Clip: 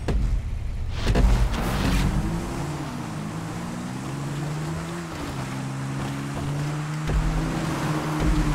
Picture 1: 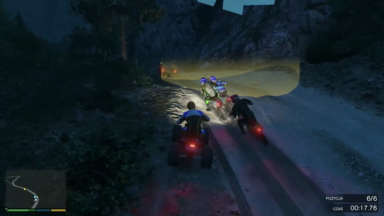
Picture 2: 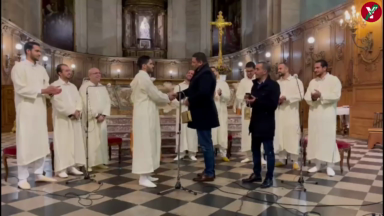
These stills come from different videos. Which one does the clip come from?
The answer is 1